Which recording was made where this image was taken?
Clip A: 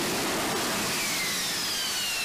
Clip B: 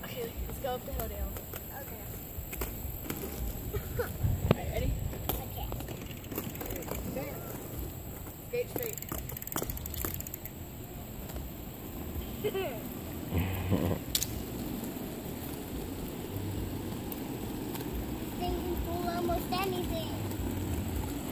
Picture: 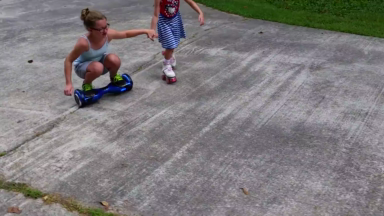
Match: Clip B